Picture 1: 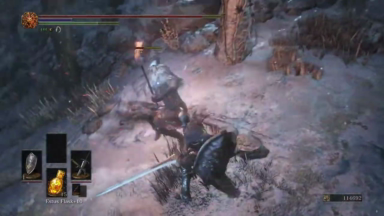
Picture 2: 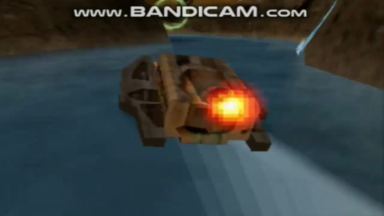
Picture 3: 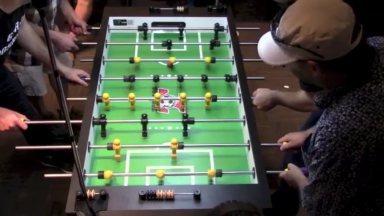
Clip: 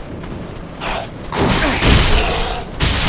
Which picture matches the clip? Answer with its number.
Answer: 1